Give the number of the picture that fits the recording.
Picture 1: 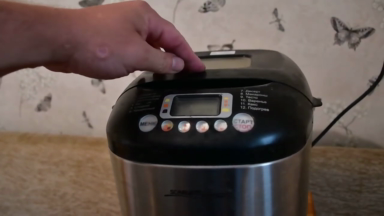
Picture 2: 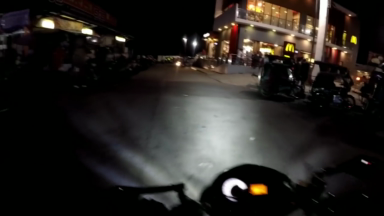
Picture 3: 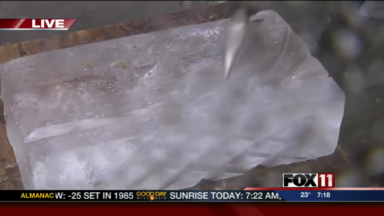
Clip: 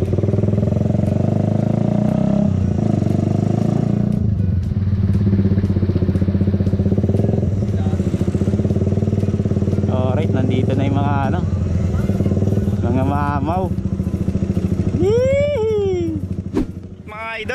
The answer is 2